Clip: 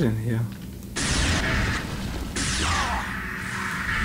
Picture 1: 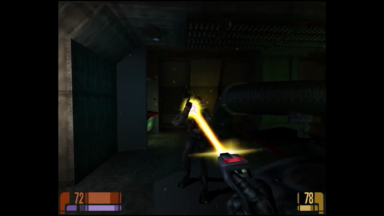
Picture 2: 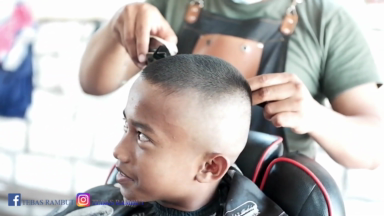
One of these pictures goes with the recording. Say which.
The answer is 1